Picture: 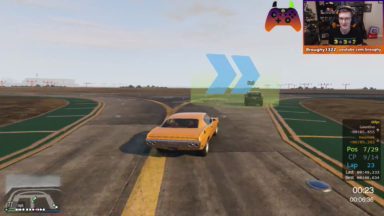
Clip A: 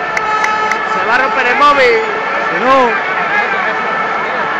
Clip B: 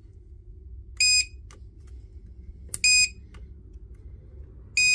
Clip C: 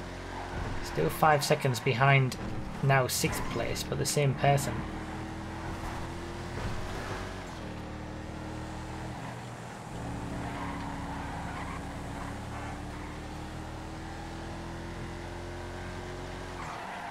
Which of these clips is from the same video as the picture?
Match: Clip C